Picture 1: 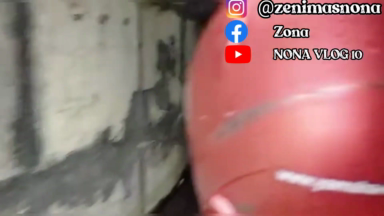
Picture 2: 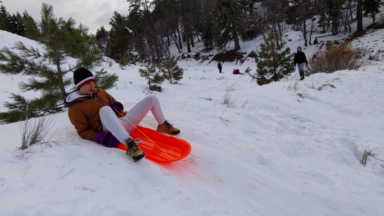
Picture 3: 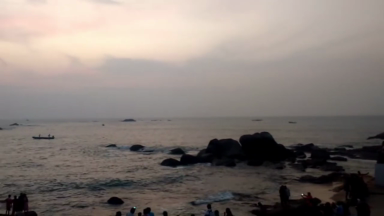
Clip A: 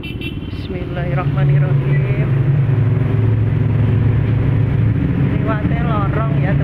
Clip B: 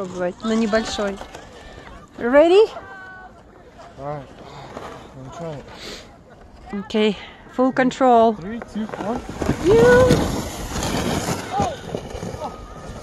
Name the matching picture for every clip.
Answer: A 1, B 2